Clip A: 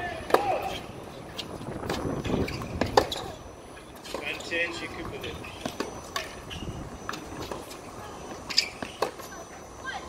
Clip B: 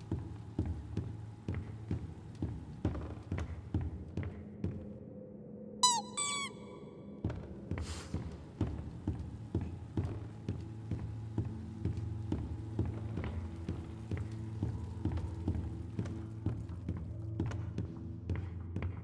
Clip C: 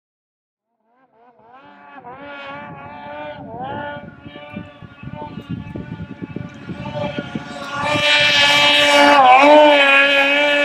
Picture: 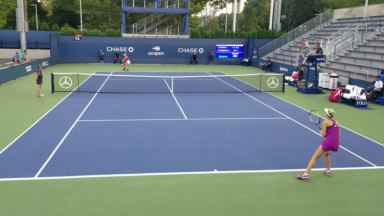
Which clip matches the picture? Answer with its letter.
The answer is A